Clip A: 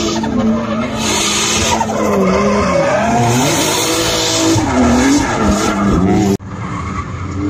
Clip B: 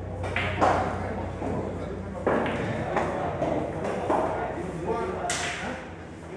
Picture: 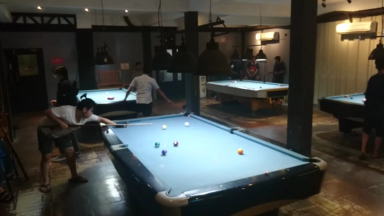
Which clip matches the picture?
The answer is B